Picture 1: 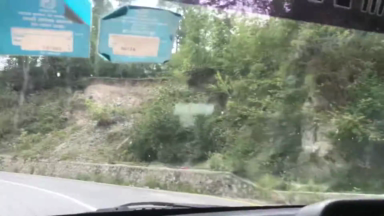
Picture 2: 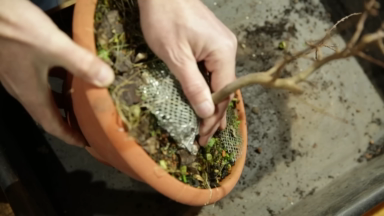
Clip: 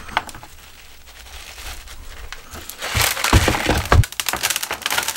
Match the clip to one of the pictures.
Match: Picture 2